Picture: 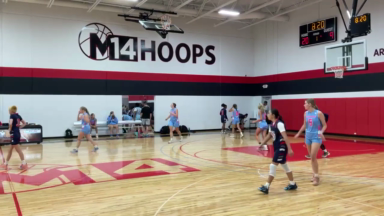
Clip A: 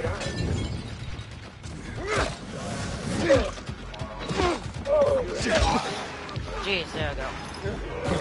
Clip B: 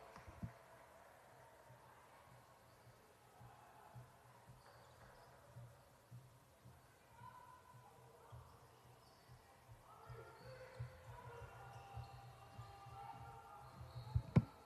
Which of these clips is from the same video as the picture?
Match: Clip B